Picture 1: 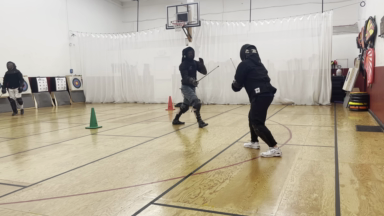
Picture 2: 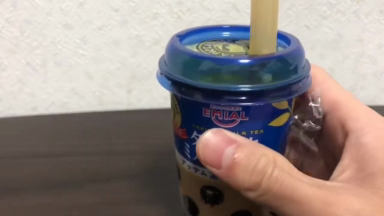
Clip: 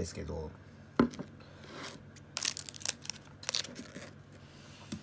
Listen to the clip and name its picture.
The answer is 2